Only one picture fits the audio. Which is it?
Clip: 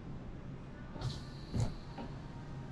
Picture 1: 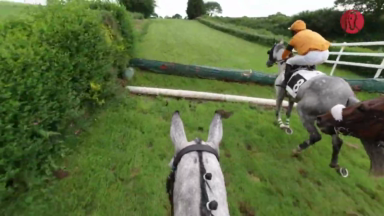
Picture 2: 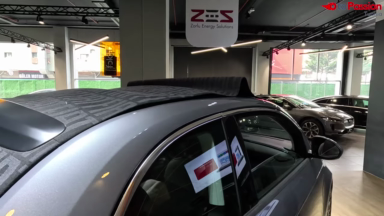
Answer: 2